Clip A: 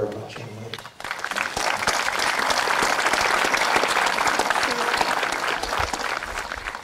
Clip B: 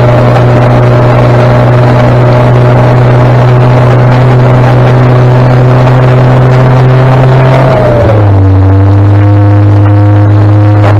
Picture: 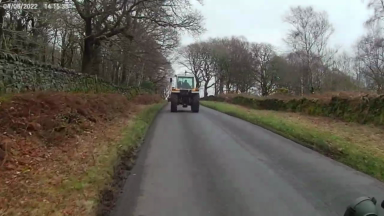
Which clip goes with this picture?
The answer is B